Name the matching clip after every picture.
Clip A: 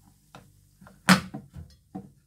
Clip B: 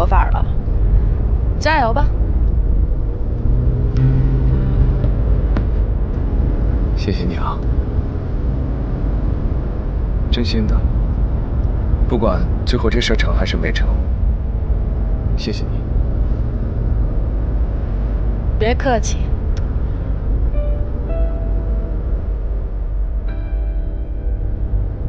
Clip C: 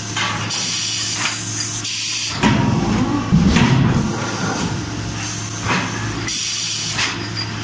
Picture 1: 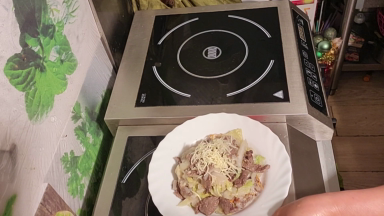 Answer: A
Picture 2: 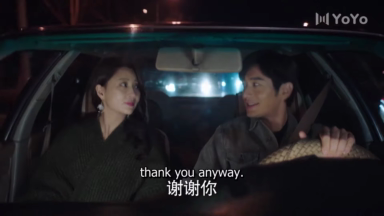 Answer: B